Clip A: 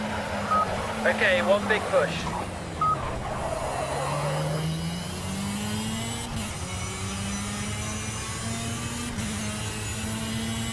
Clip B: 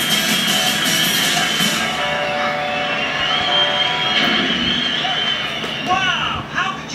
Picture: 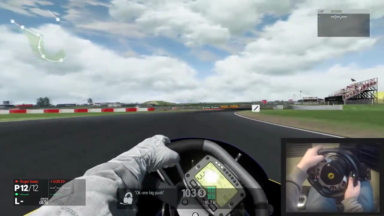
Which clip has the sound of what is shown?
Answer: A